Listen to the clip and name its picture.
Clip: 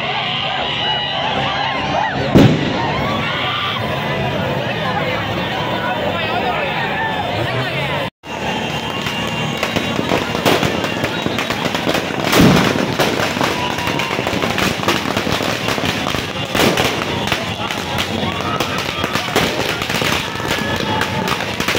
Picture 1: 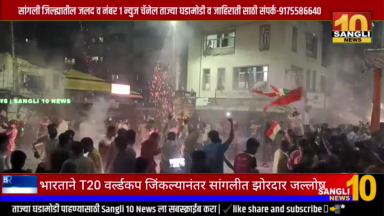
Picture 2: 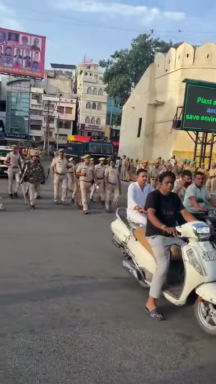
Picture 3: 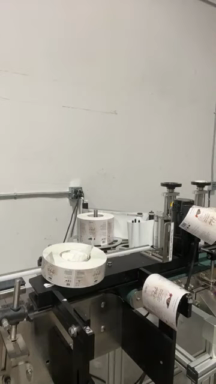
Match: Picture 1